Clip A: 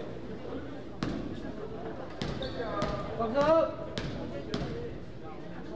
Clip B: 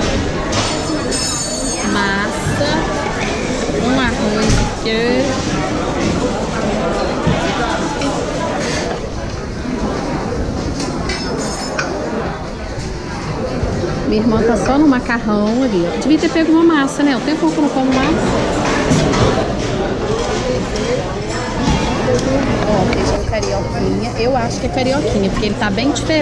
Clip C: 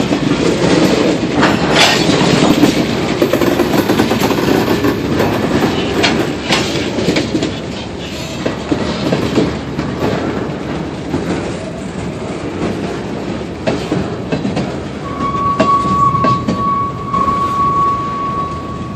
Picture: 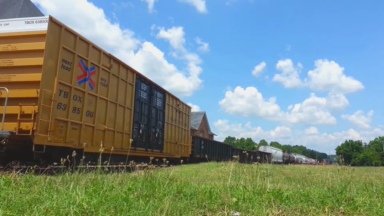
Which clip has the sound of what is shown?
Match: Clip C